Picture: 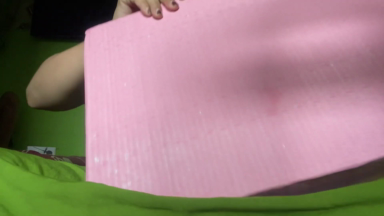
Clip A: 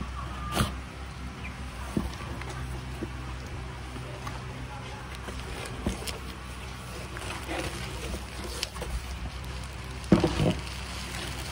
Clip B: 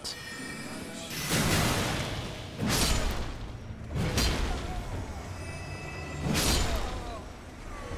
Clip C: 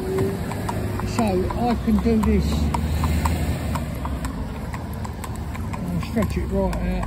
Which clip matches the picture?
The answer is A